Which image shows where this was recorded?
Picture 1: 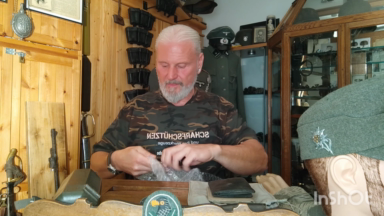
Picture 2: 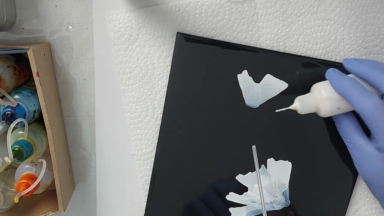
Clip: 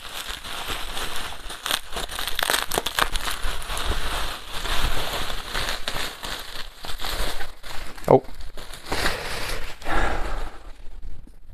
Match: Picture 1